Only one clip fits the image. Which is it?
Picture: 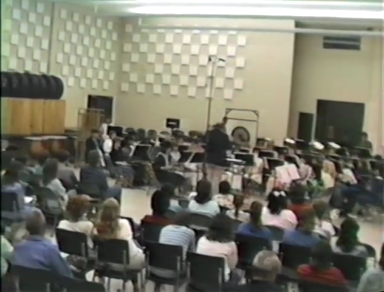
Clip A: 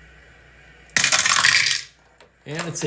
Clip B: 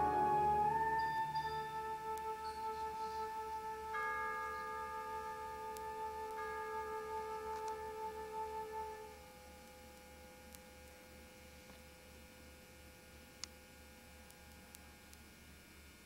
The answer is B